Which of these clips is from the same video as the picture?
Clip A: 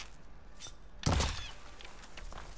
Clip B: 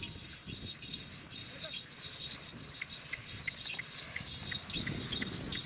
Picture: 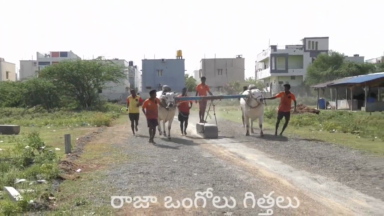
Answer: B